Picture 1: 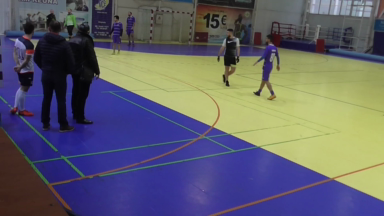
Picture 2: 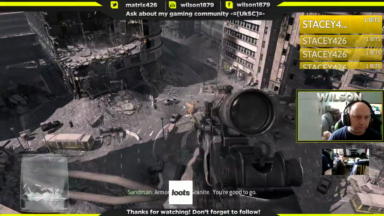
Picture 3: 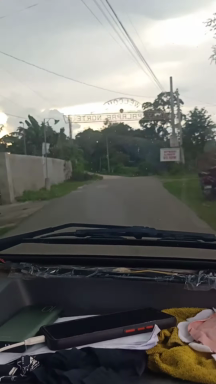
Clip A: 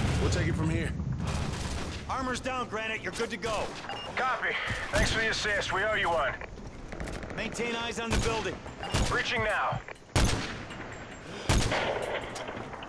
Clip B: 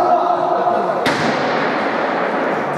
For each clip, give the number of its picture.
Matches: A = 2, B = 1